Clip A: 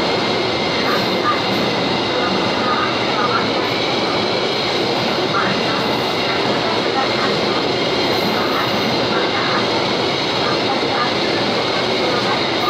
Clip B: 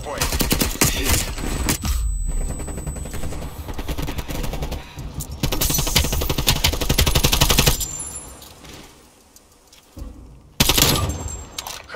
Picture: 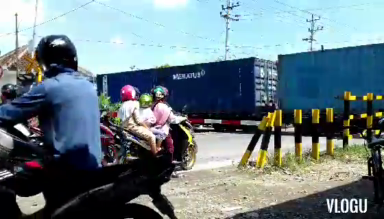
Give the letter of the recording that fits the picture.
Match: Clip A